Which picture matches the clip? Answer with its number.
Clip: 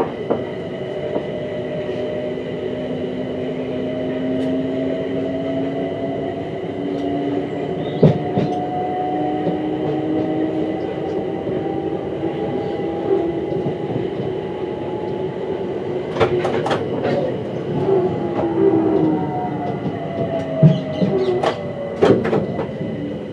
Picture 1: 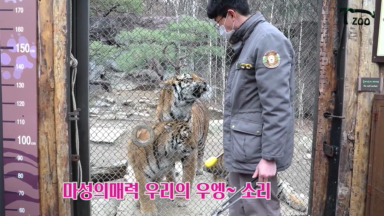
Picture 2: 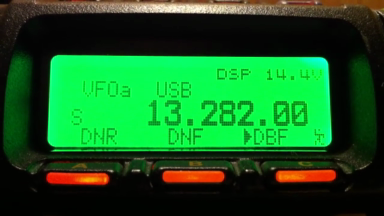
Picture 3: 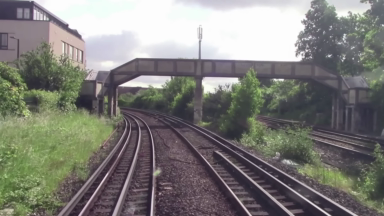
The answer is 3